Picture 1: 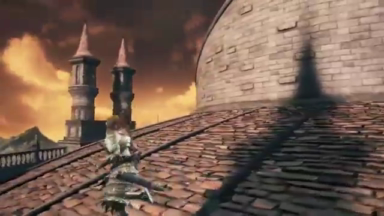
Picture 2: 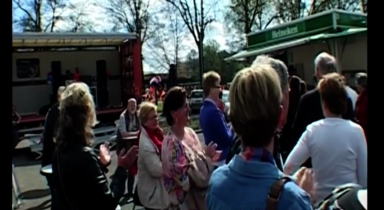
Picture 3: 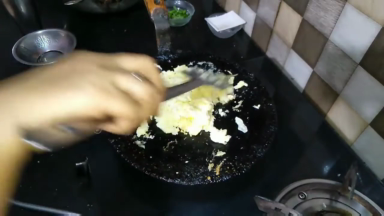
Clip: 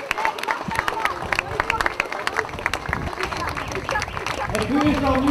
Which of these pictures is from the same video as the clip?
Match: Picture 2